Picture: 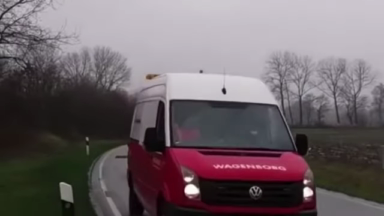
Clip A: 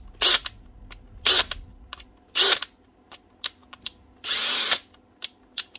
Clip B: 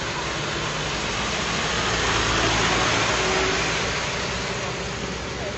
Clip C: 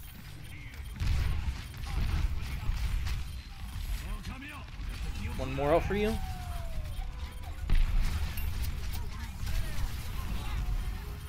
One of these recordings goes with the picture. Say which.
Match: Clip B